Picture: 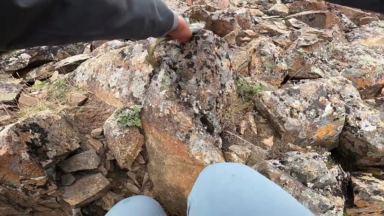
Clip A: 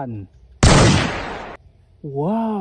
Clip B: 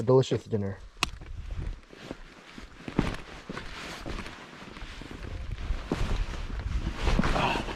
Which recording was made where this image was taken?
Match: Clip B